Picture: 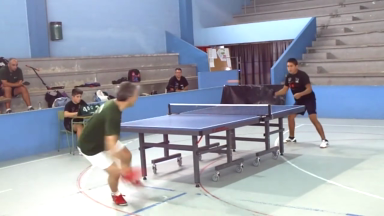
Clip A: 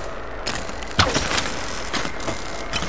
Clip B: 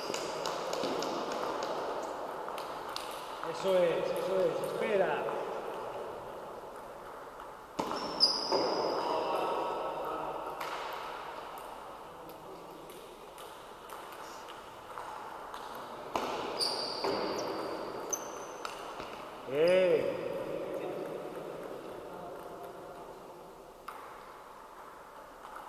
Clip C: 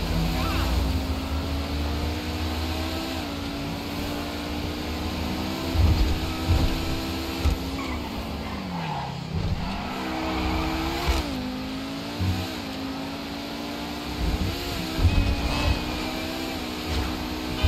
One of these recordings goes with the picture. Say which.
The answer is B